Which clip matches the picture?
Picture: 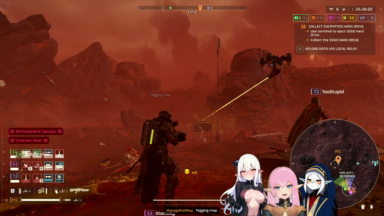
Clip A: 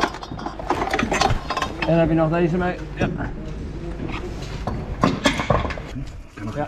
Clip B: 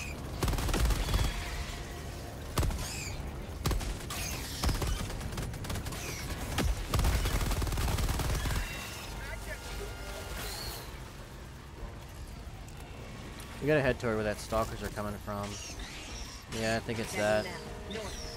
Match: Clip B